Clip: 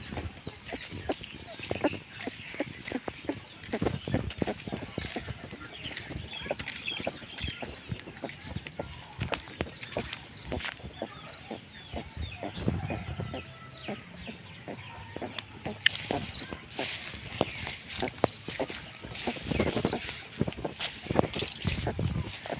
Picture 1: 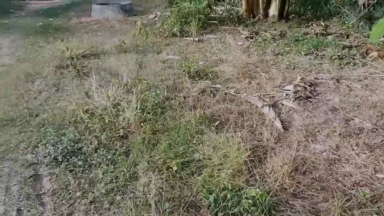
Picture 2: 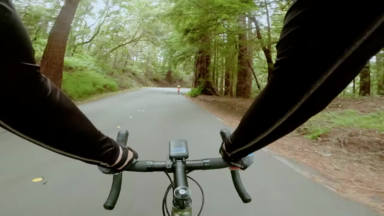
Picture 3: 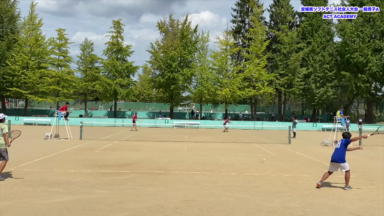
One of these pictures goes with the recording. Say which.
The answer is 1